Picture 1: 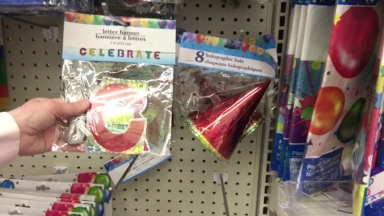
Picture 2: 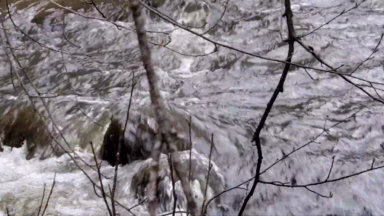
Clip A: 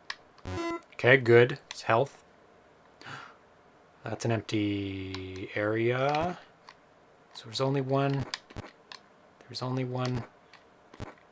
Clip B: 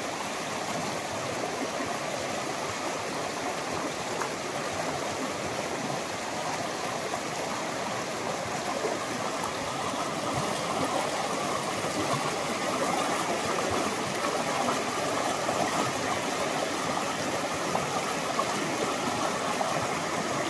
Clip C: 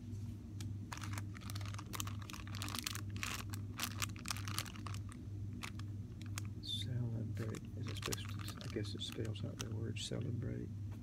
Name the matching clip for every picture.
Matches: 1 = C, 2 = B